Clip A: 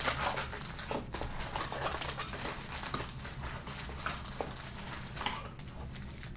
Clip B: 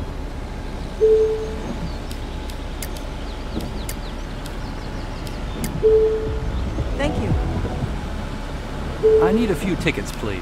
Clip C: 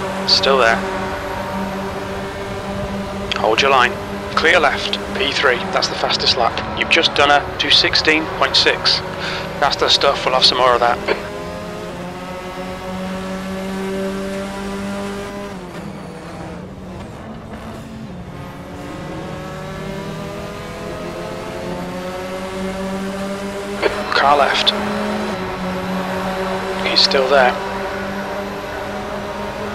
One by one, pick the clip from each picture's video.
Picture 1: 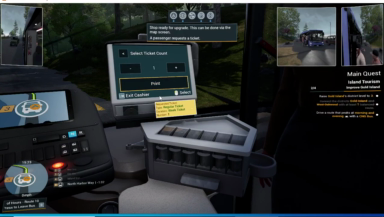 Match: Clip B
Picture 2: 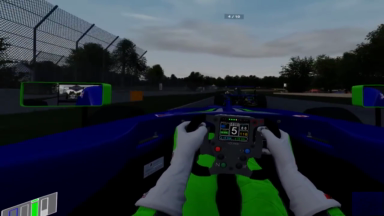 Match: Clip C